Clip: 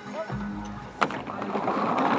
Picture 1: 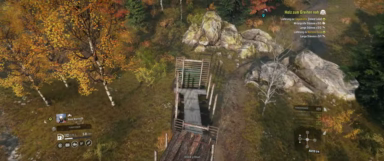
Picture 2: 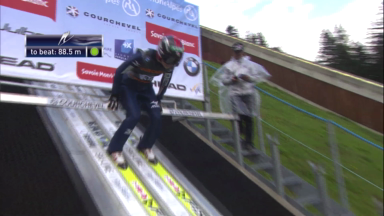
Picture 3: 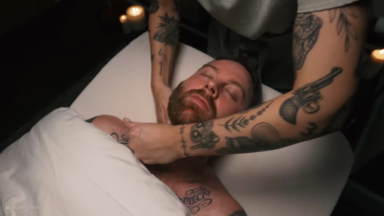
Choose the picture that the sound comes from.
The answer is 2